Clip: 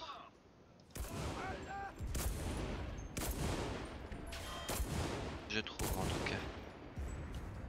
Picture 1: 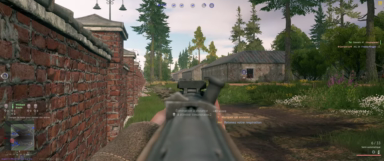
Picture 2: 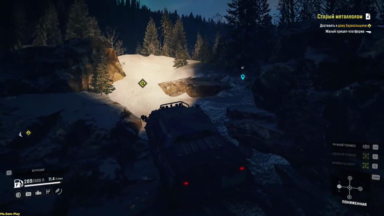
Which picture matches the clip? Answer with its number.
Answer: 1